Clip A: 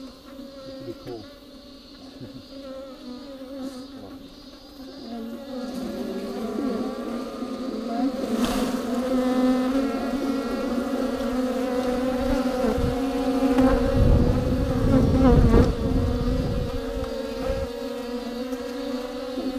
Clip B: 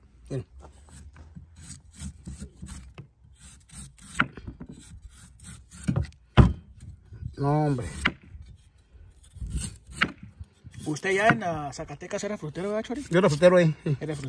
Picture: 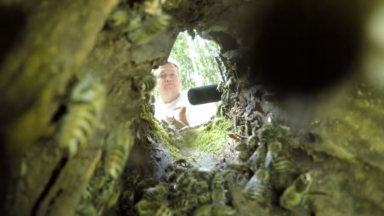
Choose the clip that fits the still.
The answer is A